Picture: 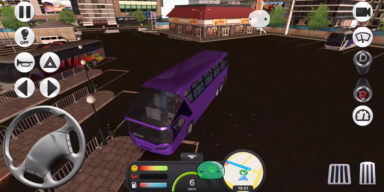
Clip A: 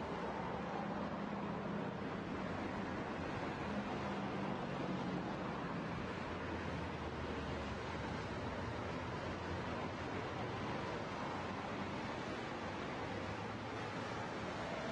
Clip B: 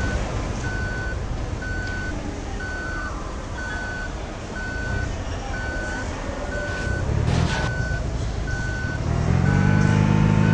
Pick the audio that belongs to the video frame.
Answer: B